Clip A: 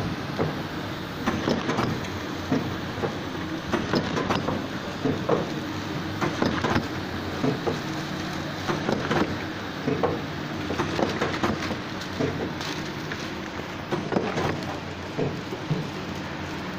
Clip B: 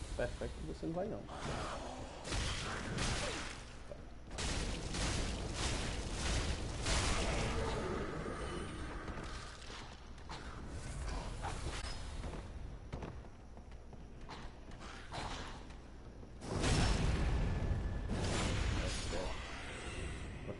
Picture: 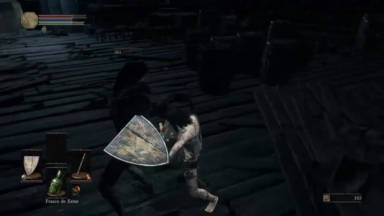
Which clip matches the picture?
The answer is B